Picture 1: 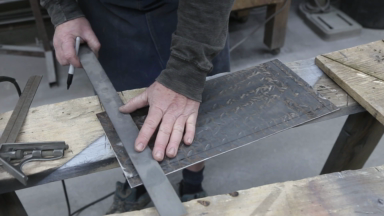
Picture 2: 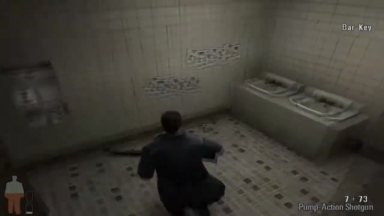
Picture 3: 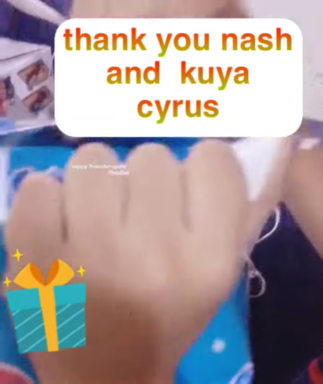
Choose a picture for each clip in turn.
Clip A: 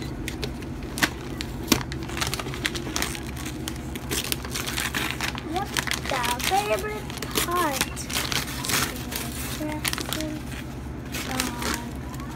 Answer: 3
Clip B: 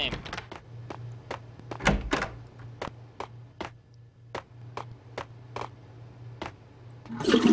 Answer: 2